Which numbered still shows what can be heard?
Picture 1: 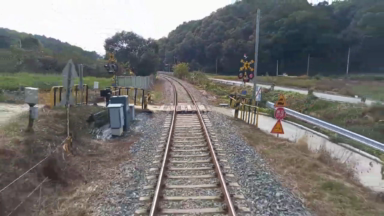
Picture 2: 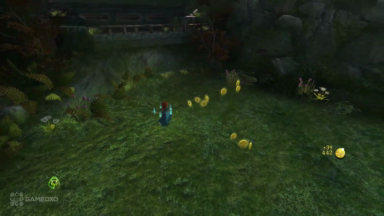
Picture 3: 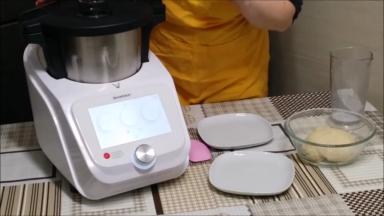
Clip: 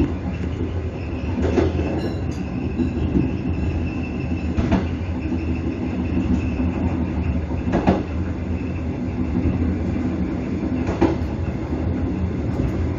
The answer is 1